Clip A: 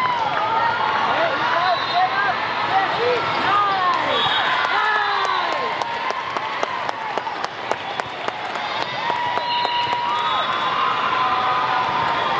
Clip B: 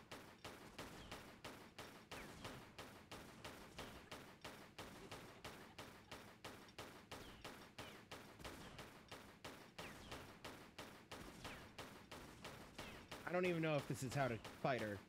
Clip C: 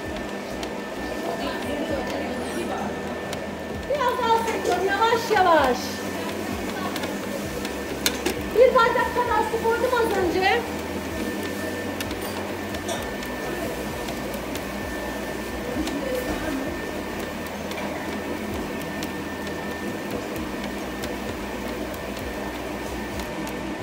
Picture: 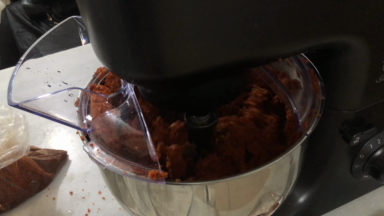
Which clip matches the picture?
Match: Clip C